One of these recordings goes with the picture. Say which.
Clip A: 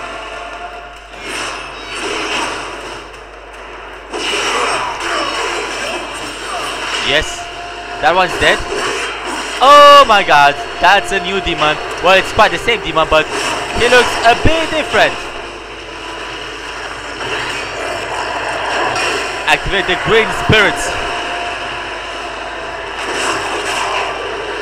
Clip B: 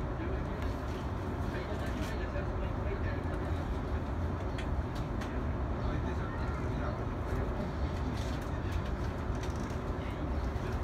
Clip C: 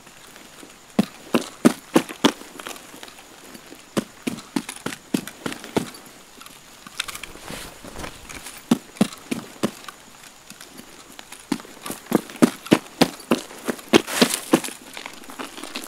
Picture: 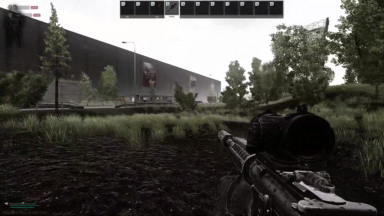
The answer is C